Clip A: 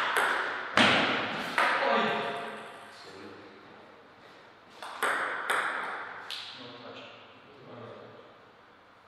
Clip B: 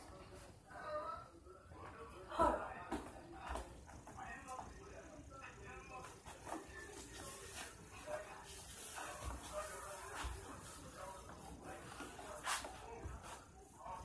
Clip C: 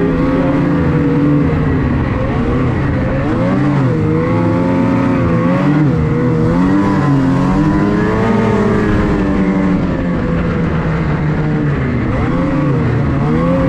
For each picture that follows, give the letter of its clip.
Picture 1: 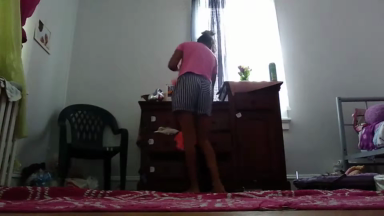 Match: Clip B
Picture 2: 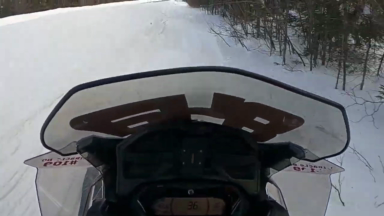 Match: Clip C